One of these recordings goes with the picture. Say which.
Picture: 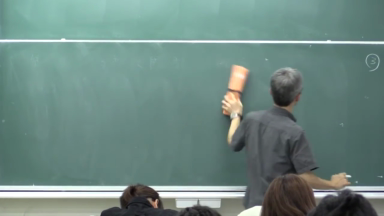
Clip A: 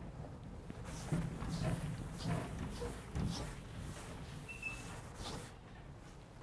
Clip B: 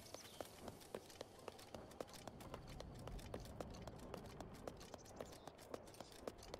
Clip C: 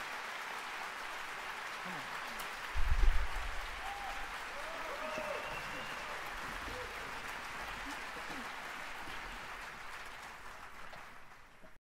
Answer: A